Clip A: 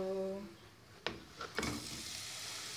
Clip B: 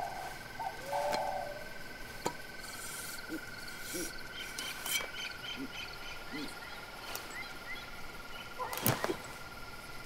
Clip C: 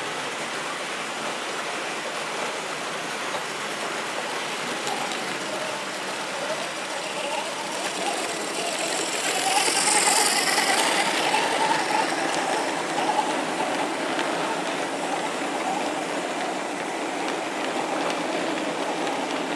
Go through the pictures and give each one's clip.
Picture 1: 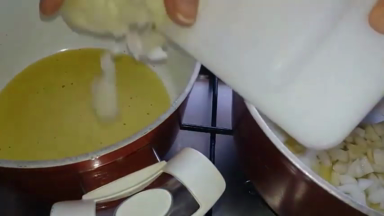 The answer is A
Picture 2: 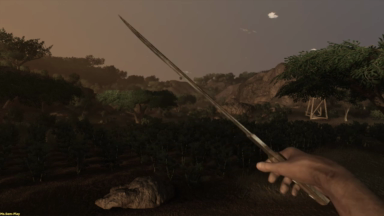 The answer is B